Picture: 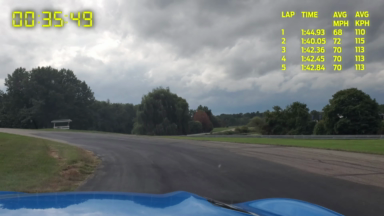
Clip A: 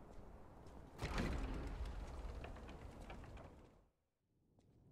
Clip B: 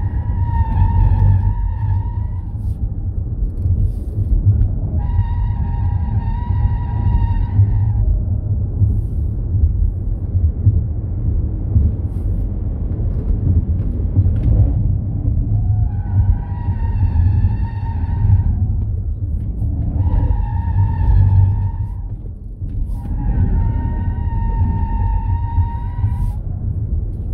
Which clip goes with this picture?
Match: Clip B